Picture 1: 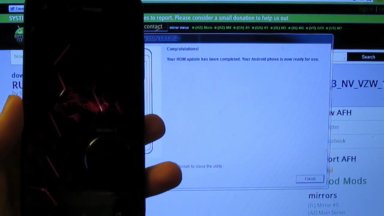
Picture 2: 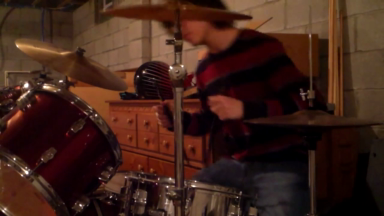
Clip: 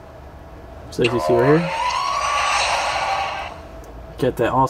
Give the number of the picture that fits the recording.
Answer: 1